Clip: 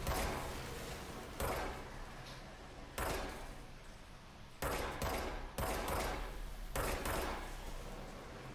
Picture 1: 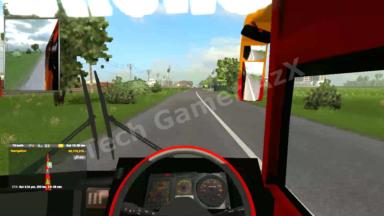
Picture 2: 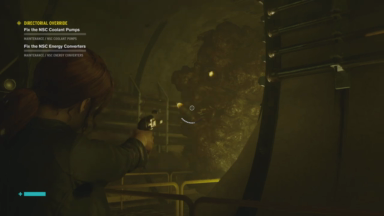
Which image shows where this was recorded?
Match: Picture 2